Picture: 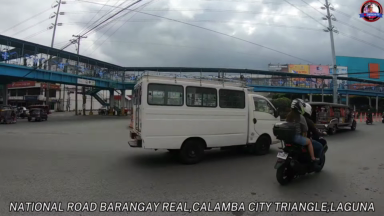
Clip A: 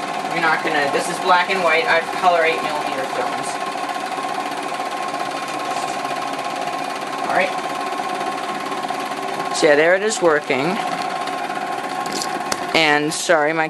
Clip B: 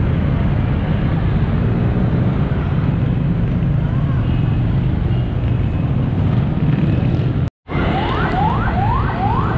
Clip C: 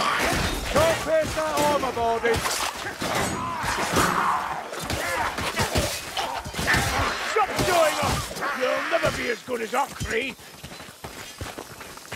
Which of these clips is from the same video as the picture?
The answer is B